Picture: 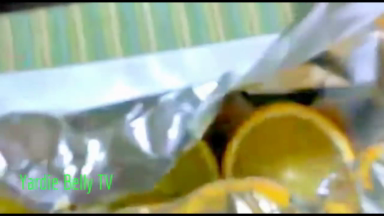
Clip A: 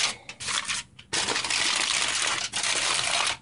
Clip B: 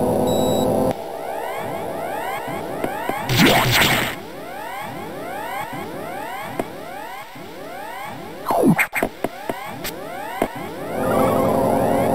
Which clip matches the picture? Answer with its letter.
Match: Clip A